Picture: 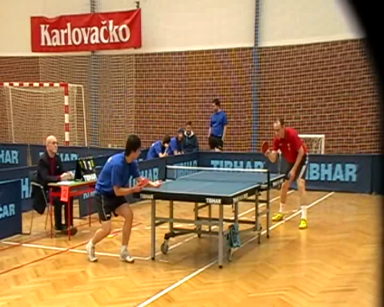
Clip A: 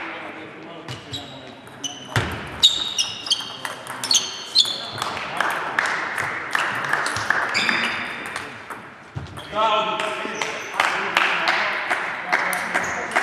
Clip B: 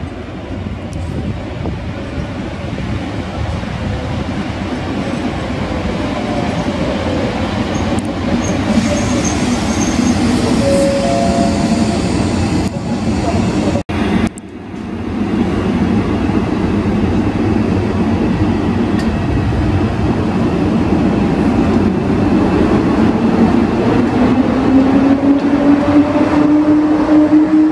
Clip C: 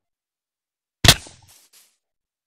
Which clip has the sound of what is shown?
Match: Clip A